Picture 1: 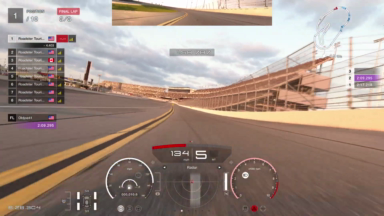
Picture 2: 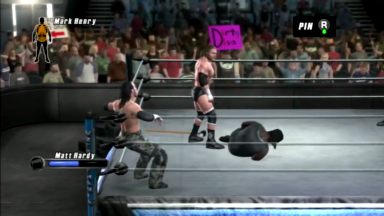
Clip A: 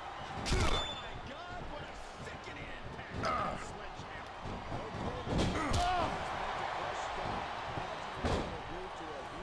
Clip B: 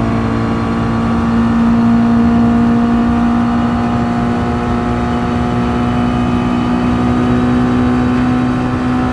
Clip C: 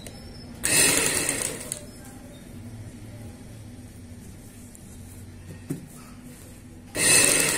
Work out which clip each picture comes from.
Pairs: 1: B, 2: A